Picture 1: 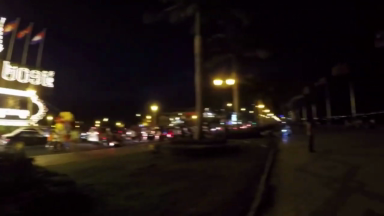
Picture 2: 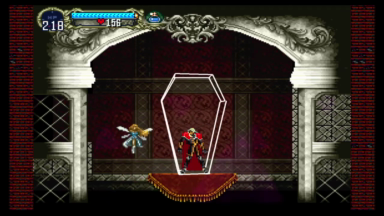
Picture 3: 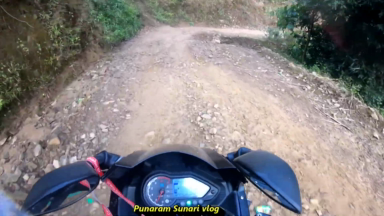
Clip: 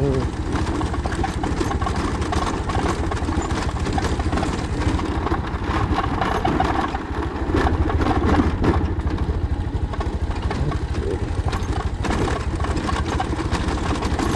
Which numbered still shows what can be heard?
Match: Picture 3